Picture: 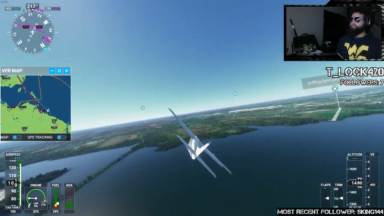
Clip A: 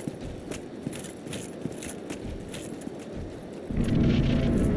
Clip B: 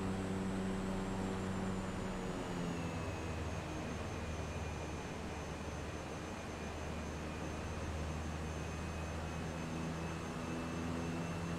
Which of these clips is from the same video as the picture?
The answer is B